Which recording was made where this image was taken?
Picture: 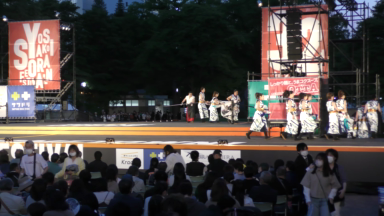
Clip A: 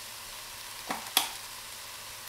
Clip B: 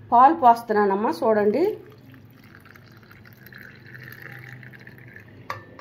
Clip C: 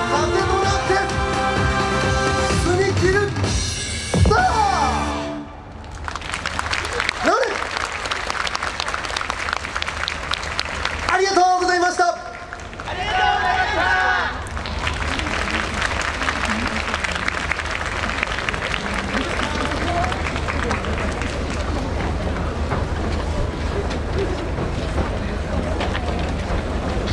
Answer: C